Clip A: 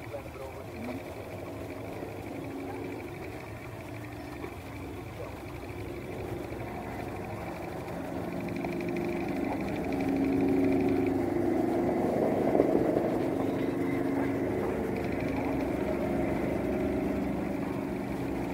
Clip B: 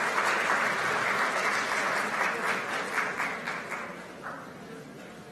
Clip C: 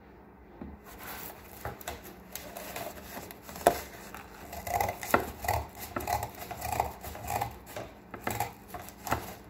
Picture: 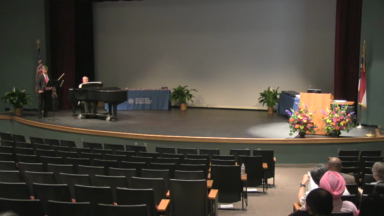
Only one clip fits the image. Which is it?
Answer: B